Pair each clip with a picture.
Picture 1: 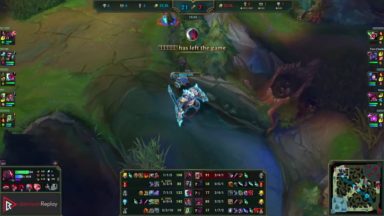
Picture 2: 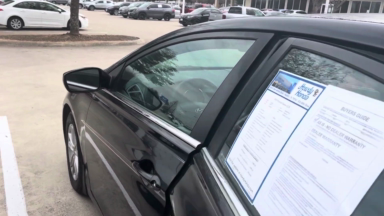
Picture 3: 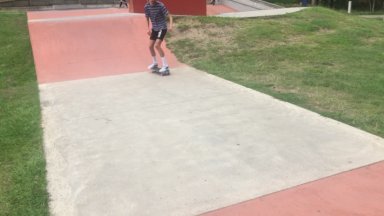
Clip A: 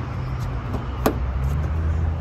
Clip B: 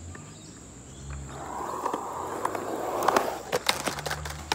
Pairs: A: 2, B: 3